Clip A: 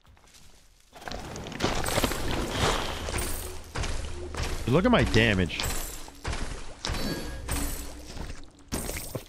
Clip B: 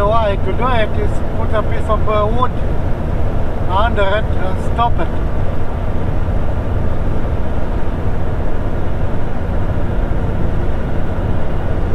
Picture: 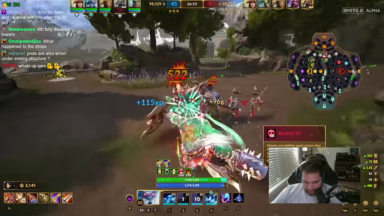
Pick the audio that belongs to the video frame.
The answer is A